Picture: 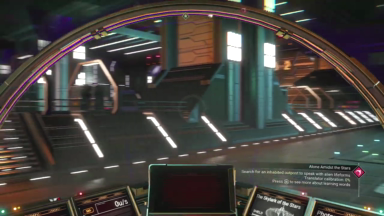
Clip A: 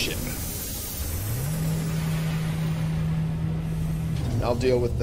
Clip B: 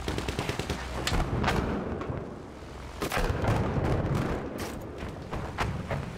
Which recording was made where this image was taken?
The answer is A